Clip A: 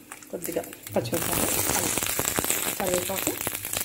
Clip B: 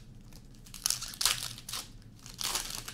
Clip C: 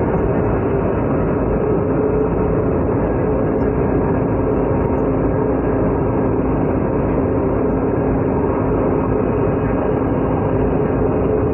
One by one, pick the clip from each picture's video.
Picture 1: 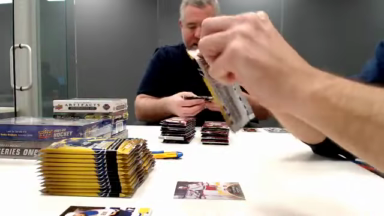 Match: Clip B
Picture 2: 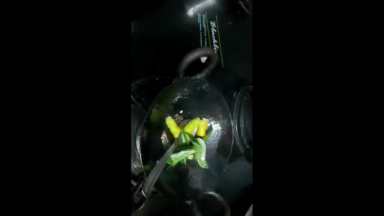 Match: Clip A